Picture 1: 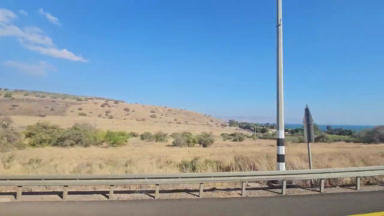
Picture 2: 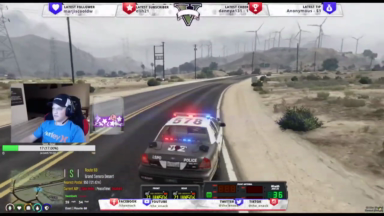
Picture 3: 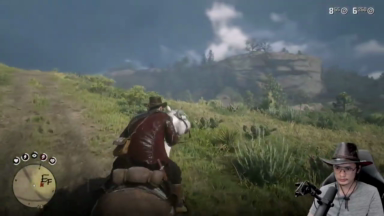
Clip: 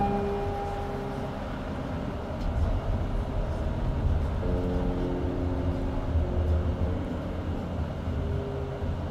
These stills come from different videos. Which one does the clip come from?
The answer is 1